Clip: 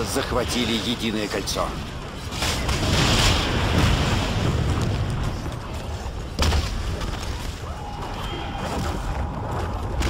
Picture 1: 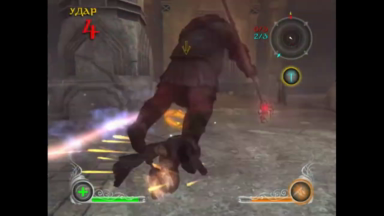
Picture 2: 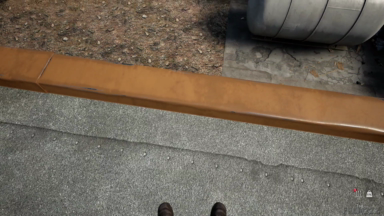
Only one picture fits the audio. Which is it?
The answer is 1